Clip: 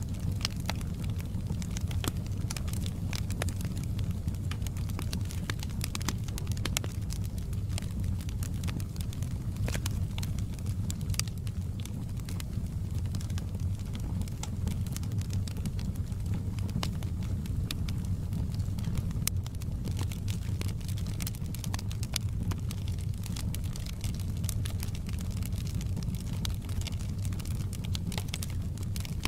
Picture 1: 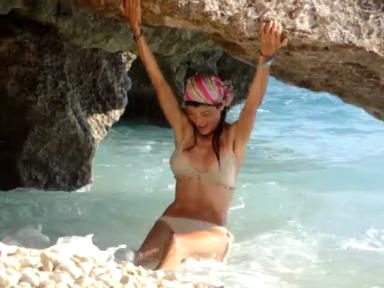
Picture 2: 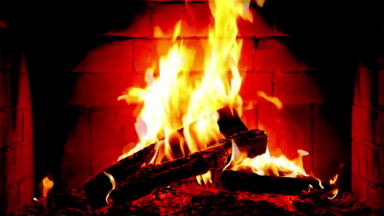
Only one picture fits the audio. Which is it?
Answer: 2